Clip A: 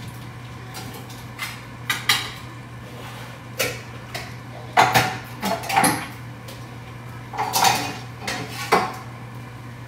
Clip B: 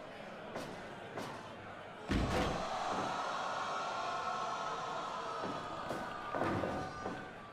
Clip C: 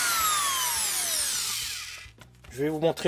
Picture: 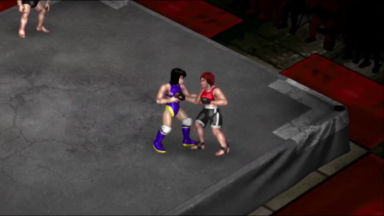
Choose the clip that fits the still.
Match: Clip B